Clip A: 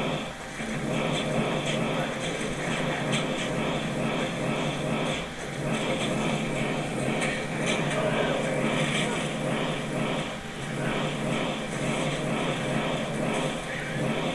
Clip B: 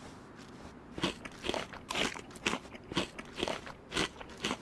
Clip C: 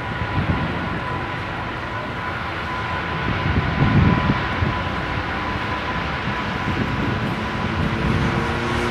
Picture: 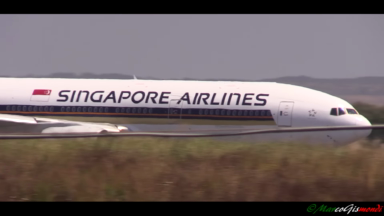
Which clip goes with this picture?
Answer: C